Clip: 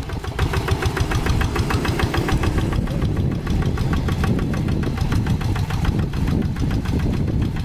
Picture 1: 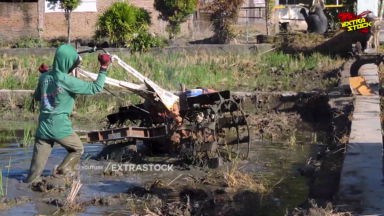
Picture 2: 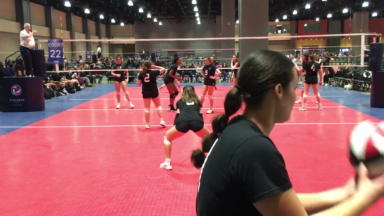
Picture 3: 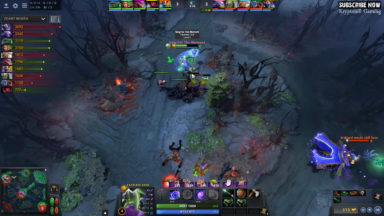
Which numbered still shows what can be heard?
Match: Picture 1